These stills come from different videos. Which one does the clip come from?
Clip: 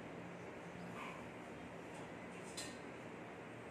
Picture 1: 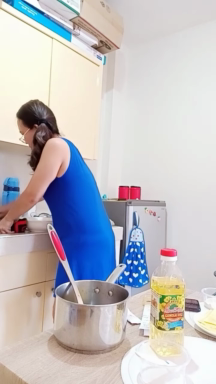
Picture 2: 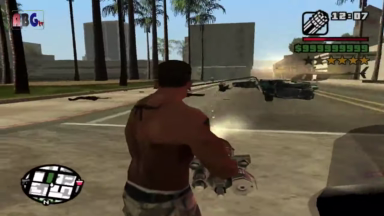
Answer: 1